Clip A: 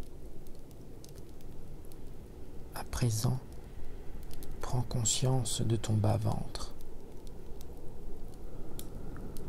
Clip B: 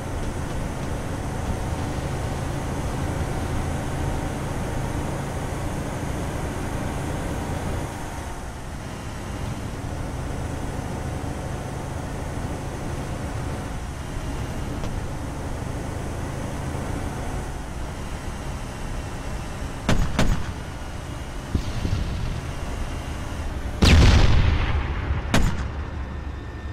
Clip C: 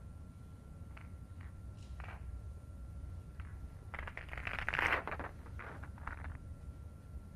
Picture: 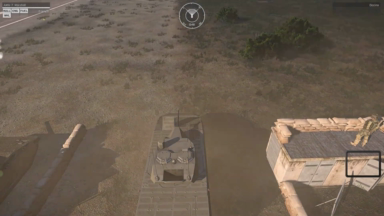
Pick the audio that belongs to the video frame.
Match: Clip B